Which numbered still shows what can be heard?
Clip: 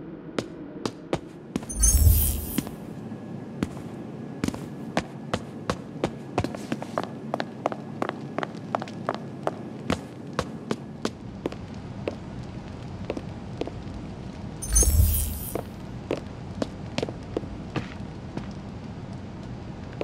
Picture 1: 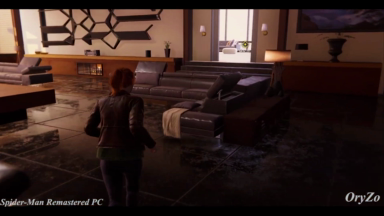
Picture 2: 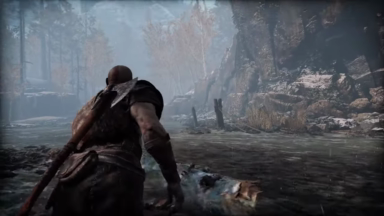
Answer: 1